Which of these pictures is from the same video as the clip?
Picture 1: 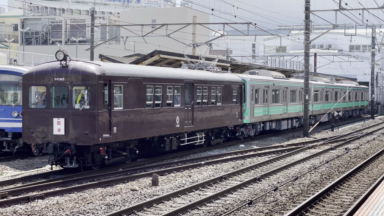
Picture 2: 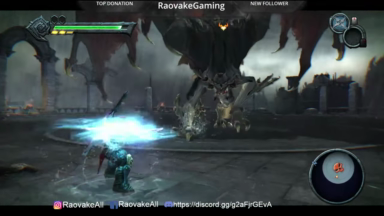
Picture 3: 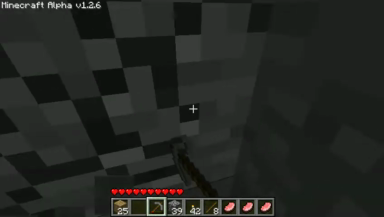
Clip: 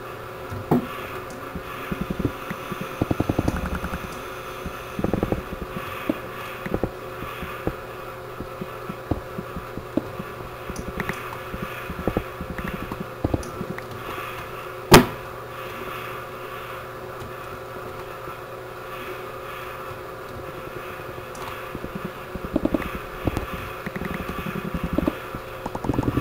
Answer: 3